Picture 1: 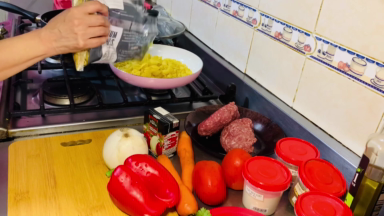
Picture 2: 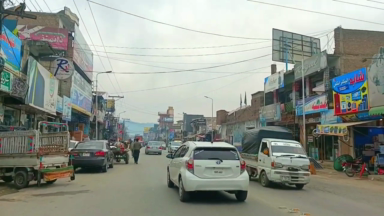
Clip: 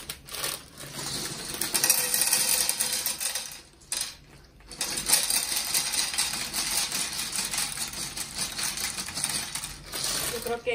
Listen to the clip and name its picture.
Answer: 1